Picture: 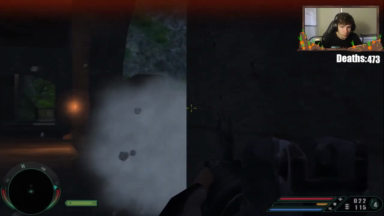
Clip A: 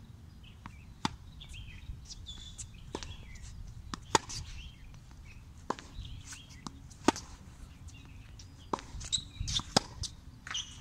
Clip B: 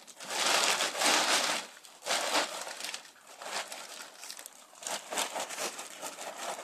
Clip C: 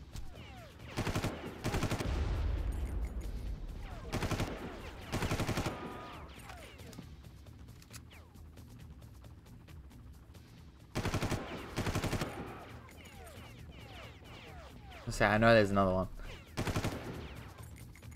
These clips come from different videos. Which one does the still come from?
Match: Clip C